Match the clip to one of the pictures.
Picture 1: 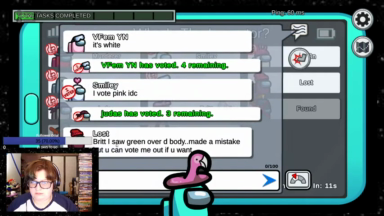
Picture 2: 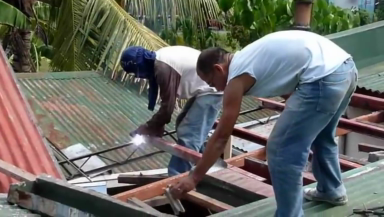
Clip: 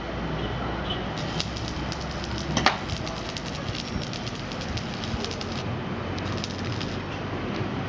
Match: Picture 2